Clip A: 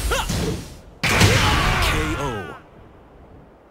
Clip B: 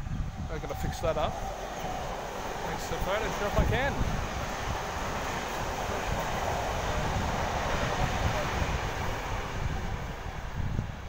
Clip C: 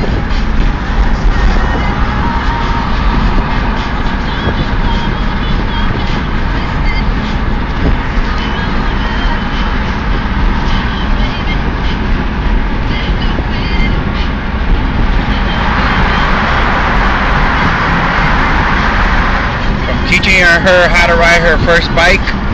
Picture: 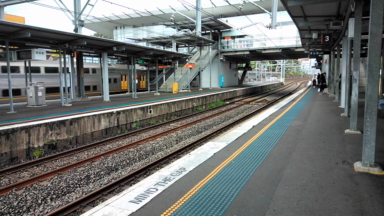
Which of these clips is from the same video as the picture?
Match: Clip B